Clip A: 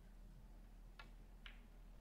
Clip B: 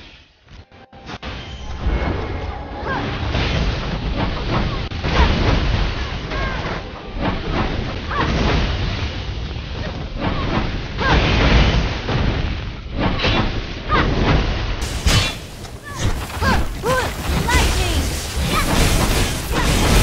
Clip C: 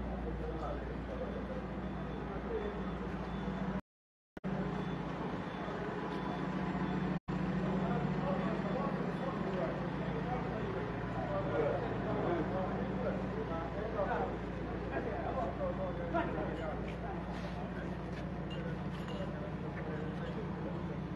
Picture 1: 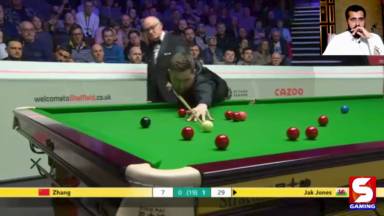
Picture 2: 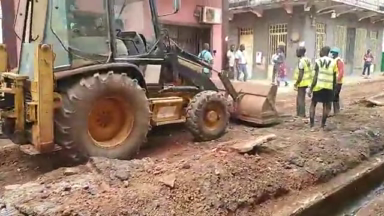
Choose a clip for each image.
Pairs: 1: A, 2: C